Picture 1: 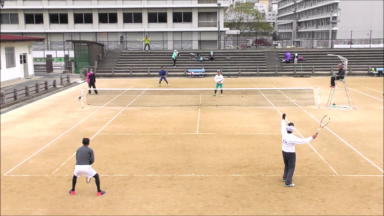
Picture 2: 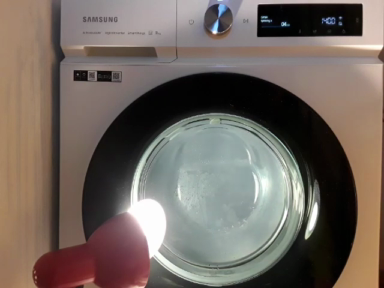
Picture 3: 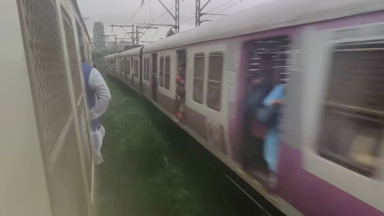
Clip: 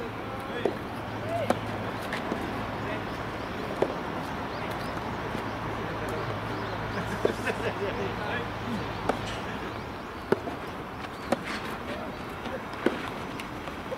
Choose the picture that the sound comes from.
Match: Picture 1